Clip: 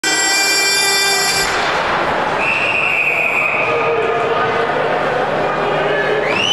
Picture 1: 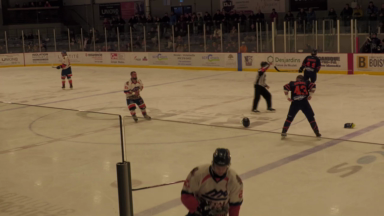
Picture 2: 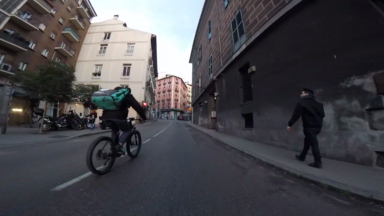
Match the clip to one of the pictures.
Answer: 1